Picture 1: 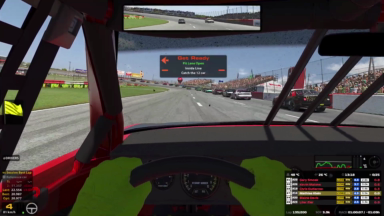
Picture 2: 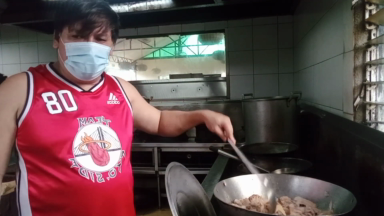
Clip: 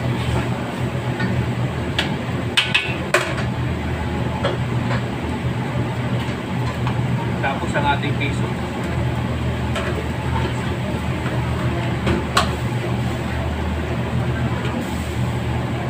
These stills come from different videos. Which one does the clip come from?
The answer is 2